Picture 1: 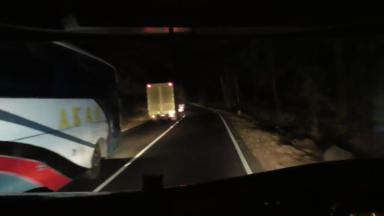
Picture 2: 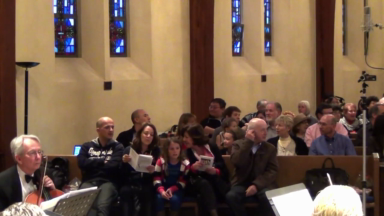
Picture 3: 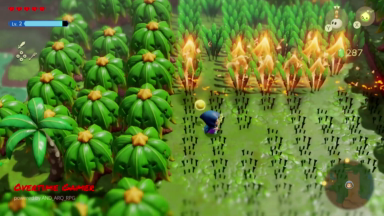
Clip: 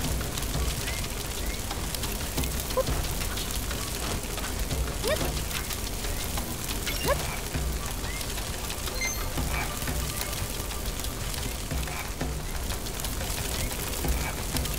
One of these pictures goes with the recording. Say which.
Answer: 3